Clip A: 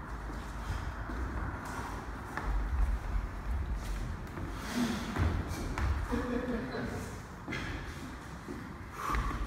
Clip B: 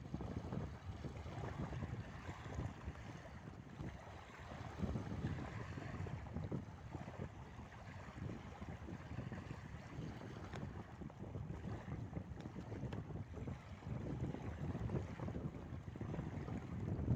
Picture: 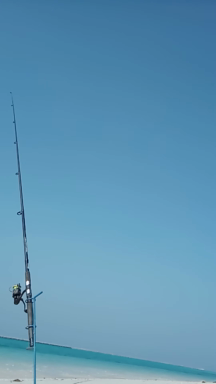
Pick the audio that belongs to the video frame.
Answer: B